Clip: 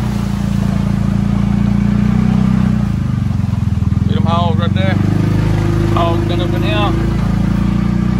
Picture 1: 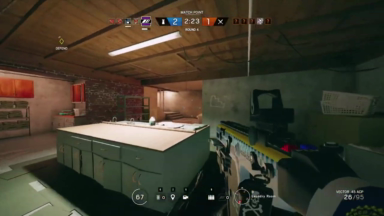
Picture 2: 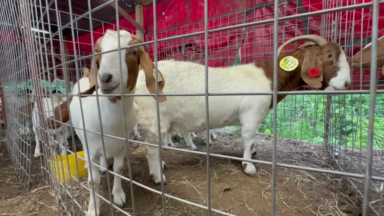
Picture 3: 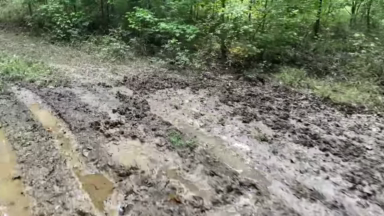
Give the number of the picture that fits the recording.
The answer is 3